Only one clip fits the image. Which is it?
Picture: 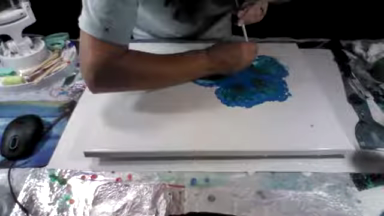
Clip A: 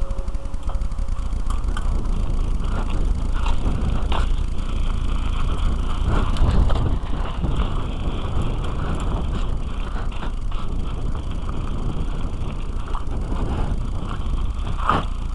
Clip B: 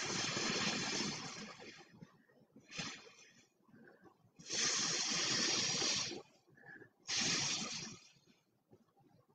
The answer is B